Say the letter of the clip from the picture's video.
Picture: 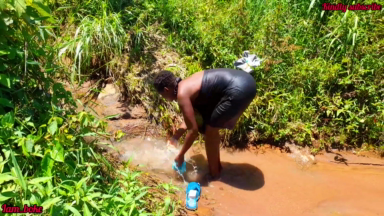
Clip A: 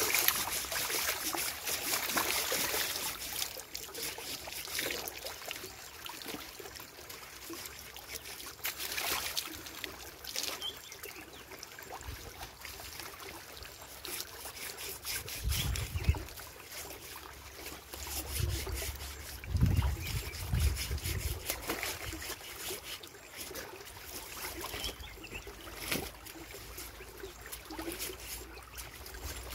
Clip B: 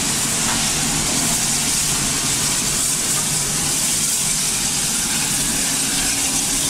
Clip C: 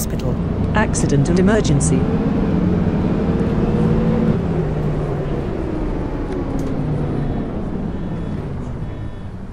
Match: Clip A